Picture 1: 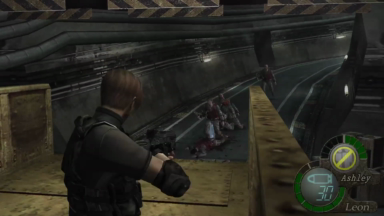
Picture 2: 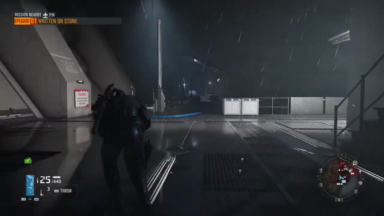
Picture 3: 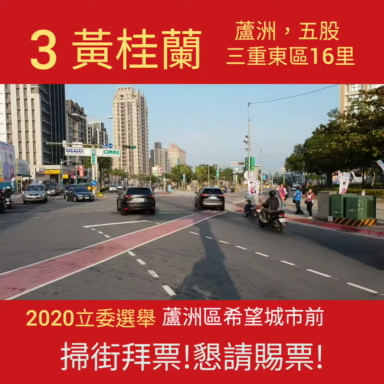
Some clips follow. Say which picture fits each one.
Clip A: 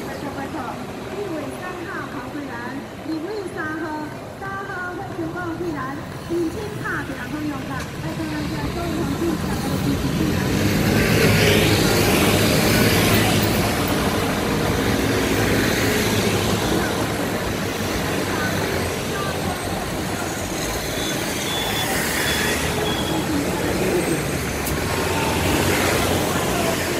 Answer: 3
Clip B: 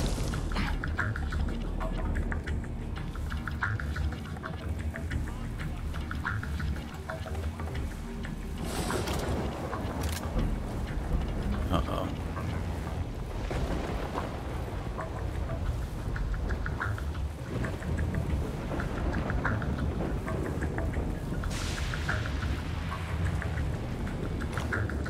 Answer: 2